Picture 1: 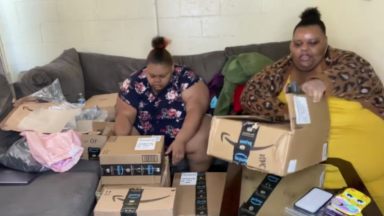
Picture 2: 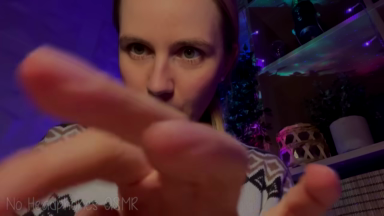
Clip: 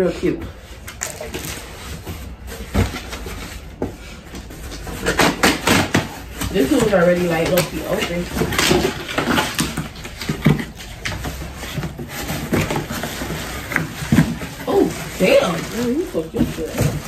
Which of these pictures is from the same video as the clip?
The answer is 1